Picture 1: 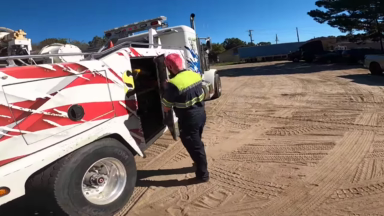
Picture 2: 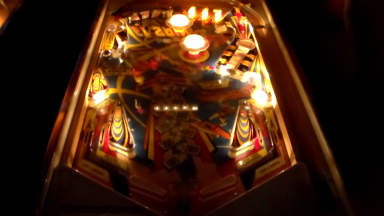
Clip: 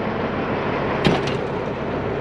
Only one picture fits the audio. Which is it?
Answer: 1